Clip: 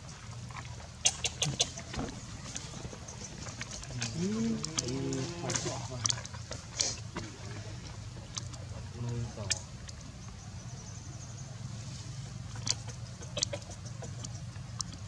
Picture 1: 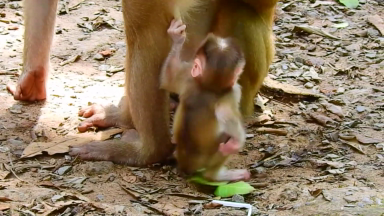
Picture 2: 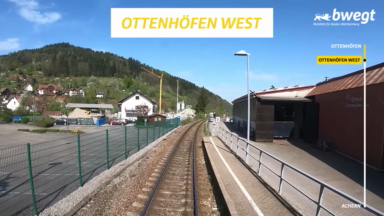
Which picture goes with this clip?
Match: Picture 1